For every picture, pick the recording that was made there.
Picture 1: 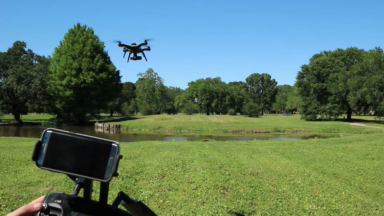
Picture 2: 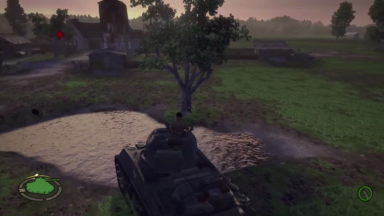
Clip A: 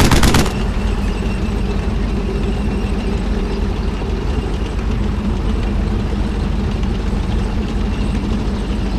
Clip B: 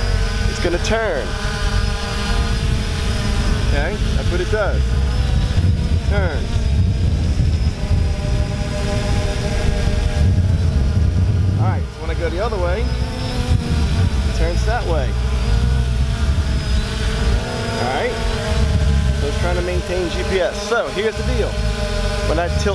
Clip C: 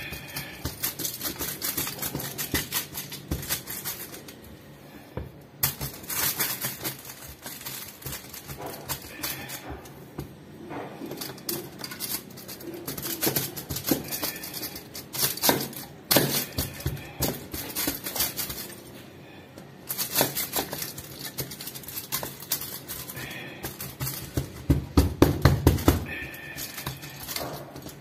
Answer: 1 B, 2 A